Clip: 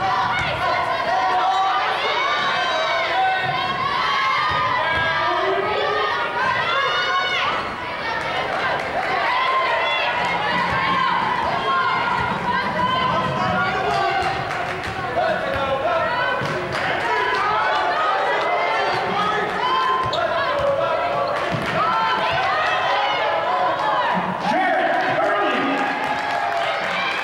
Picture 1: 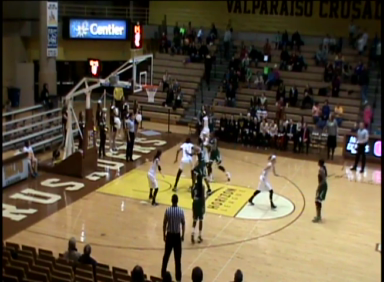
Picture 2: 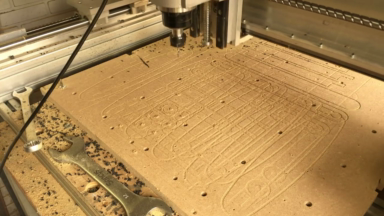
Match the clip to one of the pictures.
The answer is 1